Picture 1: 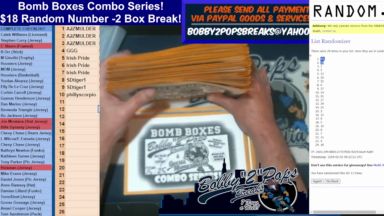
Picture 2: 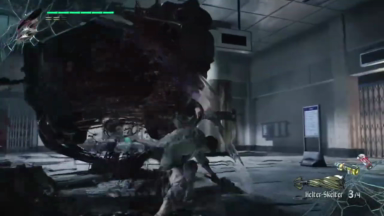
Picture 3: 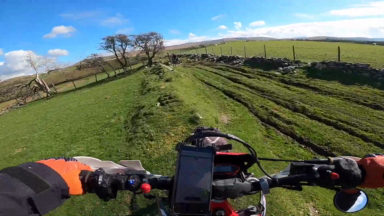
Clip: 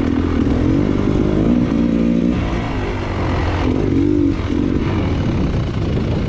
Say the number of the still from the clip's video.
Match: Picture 3